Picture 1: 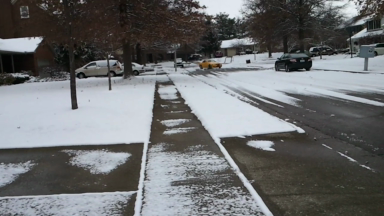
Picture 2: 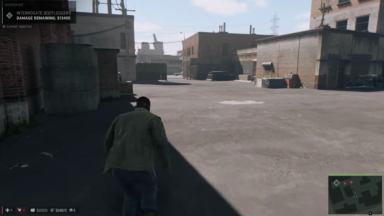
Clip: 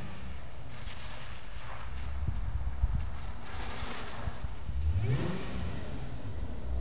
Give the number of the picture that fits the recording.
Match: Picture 1